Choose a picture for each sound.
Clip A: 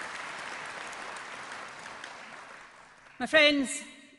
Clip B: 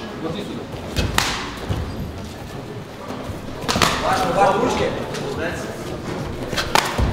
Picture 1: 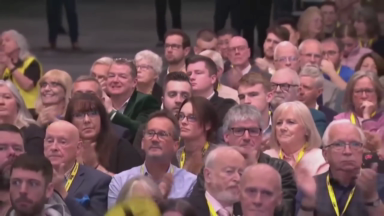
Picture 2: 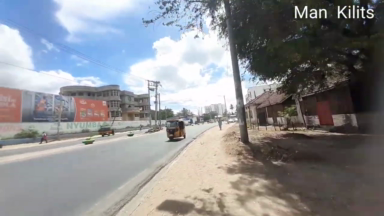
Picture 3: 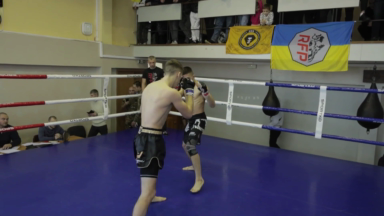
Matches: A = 1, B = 3